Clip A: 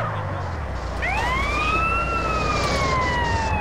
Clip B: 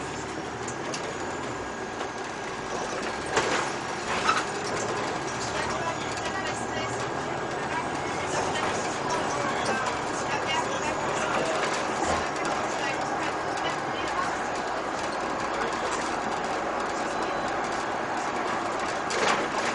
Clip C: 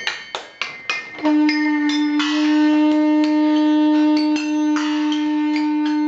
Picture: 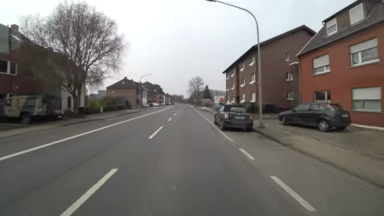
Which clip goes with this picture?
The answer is B